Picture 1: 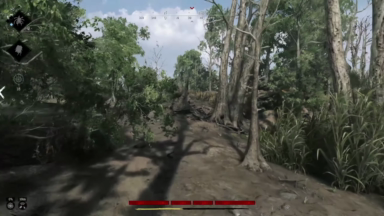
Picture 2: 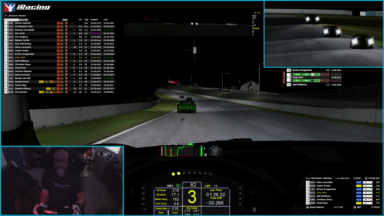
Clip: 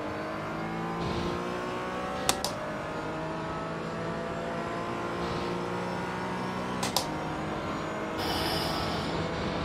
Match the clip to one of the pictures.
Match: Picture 2